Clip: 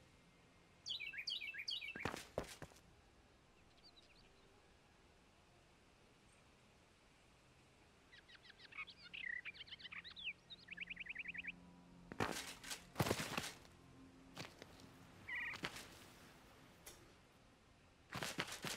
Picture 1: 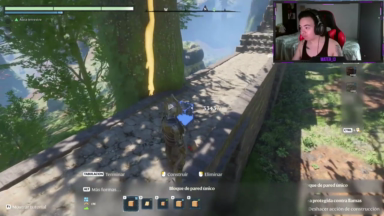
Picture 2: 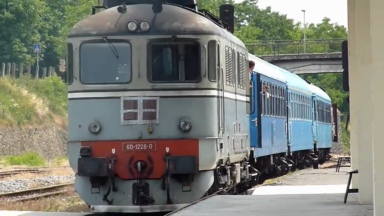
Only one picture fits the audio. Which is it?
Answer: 1